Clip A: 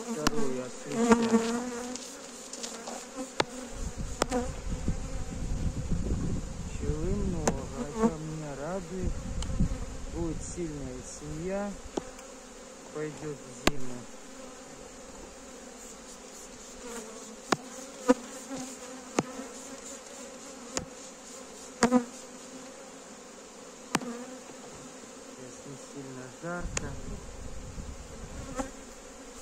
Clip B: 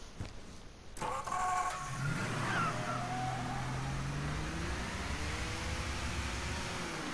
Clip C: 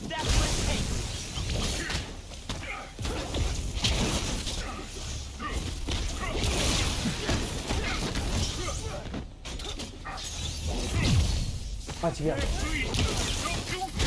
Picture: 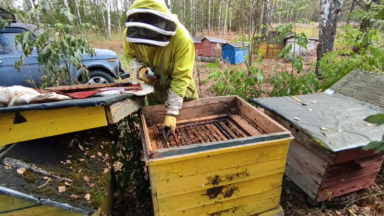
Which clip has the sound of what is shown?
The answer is A